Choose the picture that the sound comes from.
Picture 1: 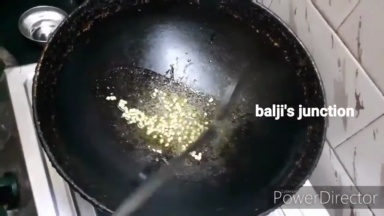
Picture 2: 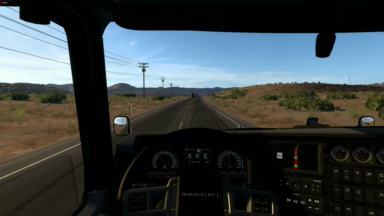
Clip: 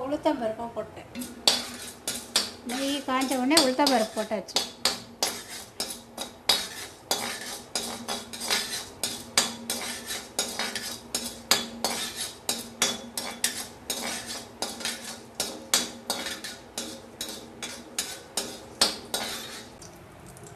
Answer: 1